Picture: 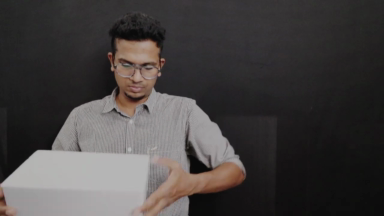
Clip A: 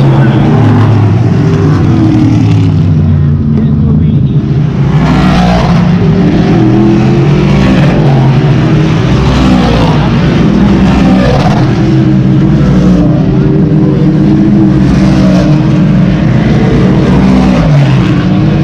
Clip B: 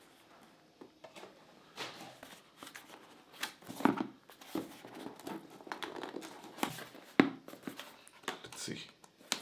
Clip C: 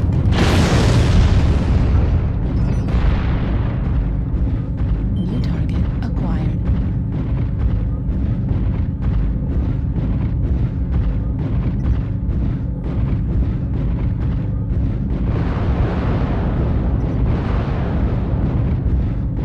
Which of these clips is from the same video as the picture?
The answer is B